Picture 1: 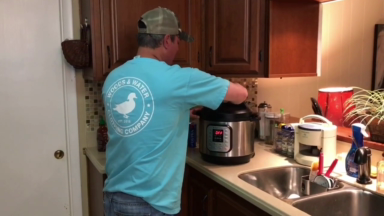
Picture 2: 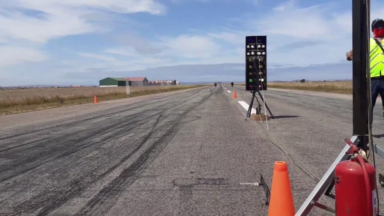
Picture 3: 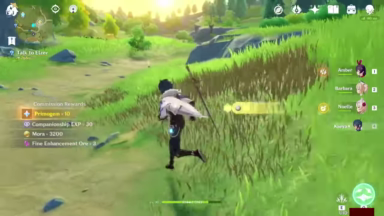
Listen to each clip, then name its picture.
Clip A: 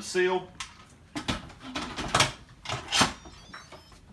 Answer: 1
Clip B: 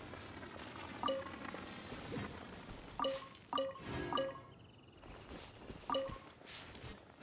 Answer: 3